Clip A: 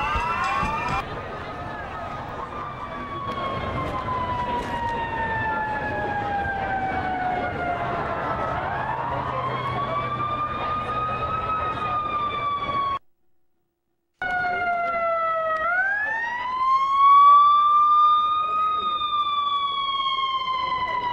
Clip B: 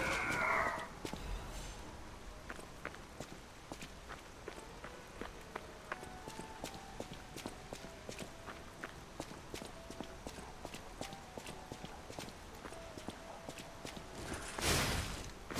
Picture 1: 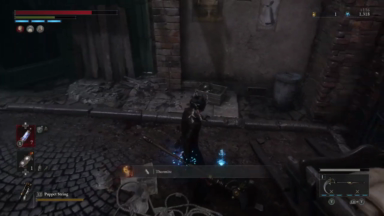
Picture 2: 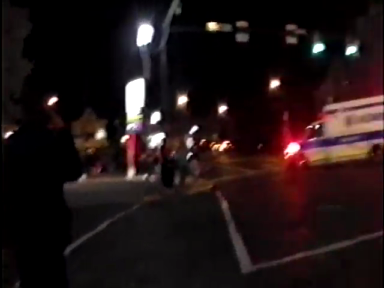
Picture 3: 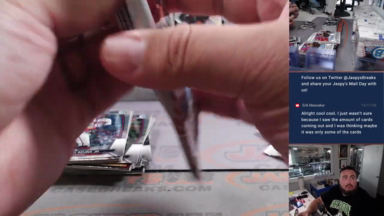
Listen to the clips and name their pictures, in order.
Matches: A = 2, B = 1